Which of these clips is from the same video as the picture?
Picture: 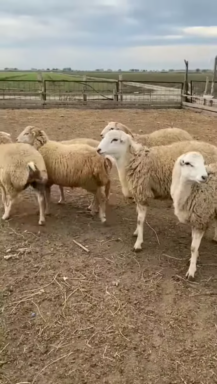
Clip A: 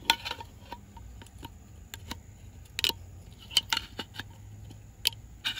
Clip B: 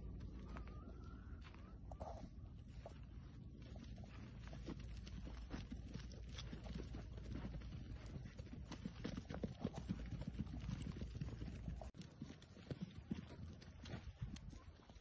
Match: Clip B